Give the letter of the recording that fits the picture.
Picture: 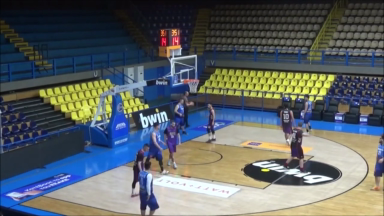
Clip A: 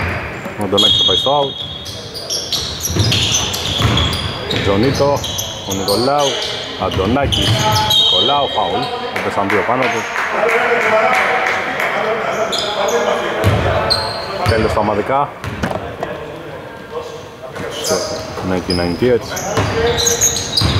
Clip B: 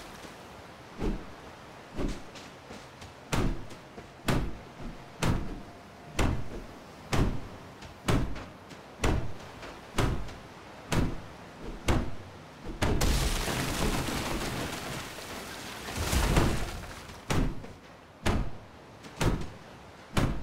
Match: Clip A